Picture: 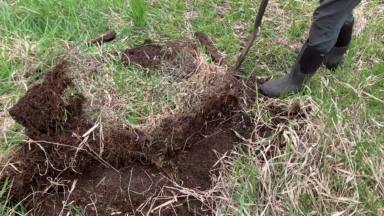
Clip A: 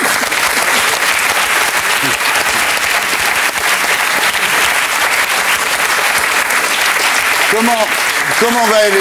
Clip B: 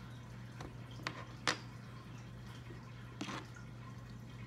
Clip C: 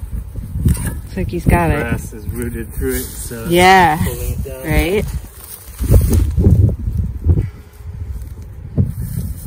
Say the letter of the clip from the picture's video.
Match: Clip C